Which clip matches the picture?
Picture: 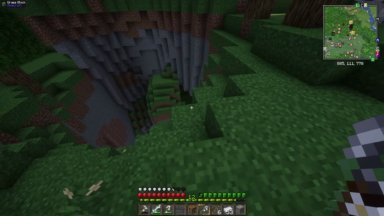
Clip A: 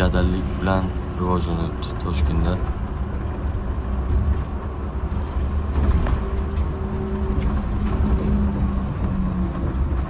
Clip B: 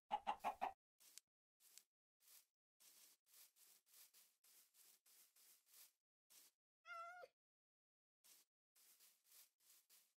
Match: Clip B